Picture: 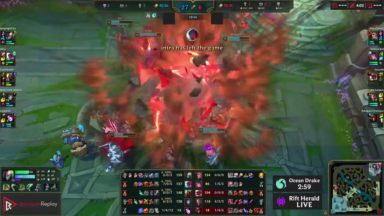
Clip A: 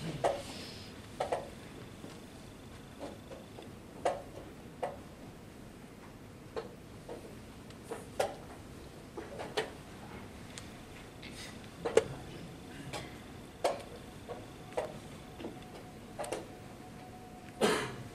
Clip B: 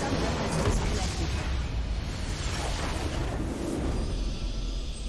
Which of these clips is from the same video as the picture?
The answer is B